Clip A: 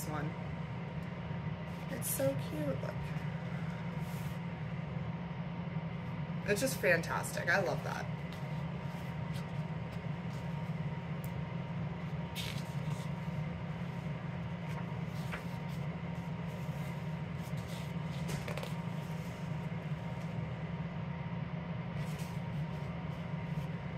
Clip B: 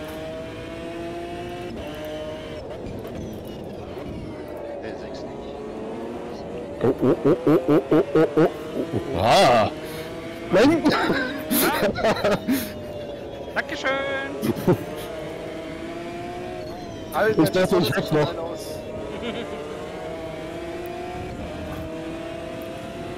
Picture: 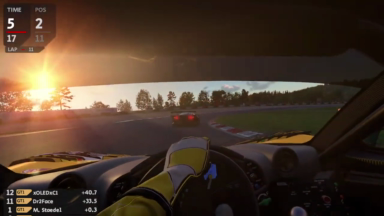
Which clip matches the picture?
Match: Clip B